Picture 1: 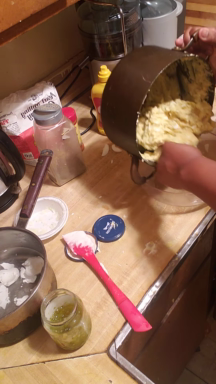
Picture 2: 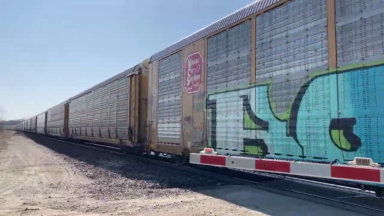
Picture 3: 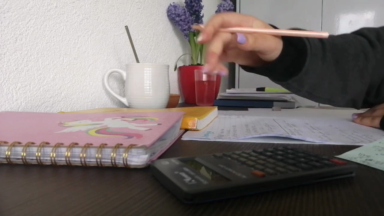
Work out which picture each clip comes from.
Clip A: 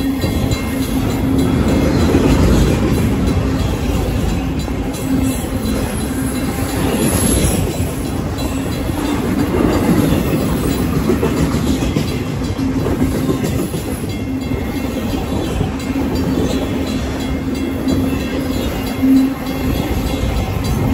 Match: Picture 2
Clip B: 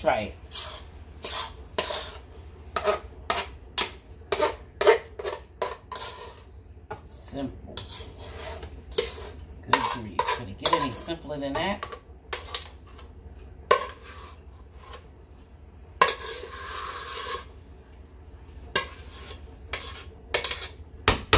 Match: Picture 1